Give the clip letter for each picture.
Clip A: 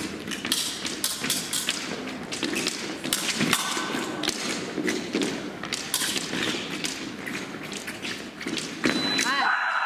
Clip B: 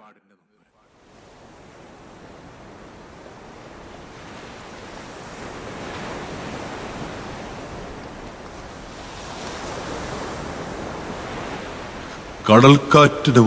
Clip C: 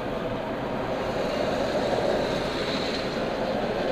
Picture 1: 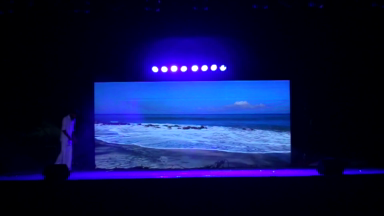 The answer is B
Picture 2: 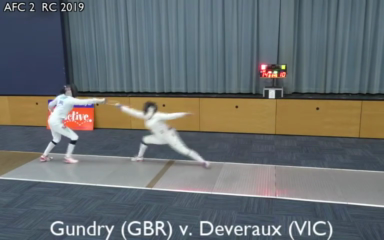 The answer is A